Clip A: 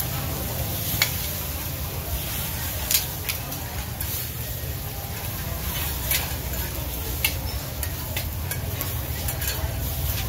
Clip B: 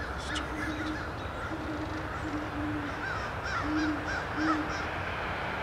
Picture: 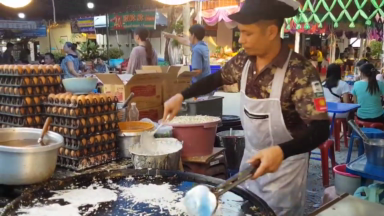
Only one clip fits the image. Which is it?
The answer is A